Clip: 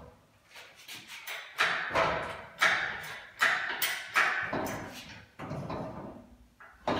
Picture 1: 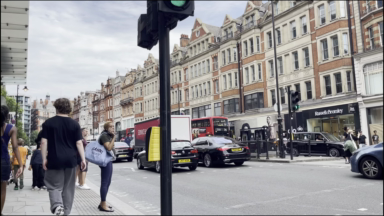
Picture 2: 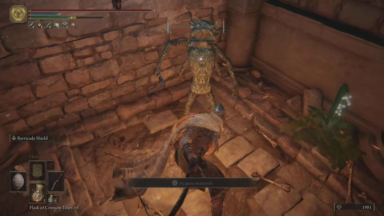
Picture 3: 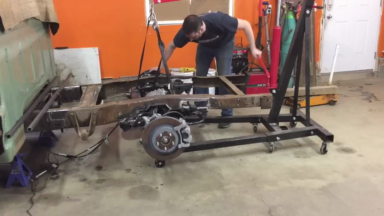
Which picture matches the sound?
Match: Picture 3